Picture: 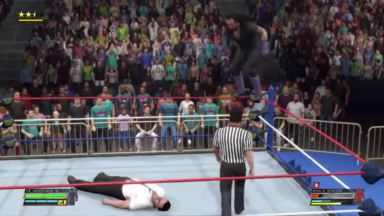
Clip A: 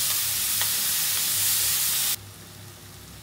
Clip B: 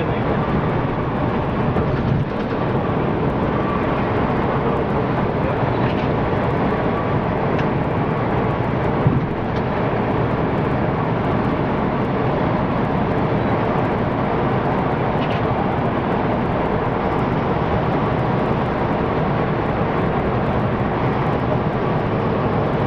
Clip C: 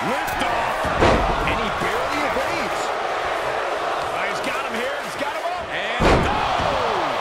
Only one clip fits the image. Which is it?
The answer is C